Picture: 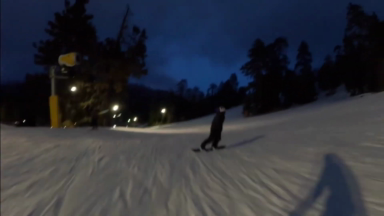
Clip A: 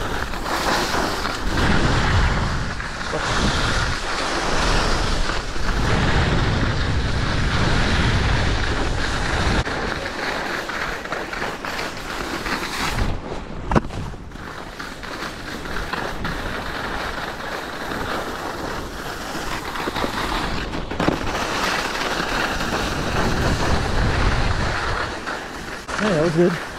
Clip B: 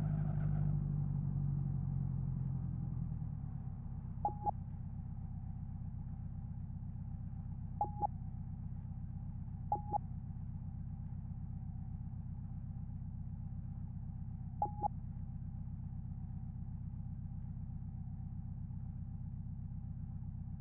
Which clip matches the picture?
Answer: A